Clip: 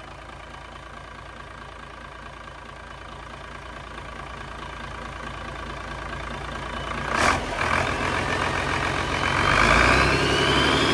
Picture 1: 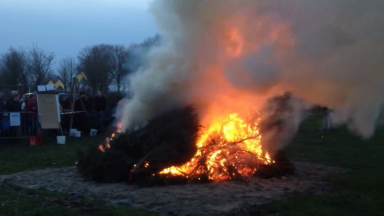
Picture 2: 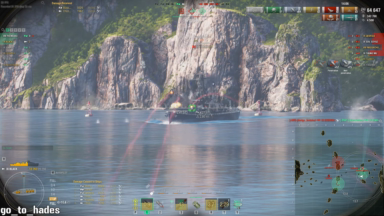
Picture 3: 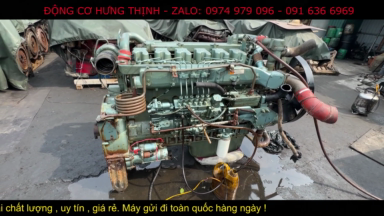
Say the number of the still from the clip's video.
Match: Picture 3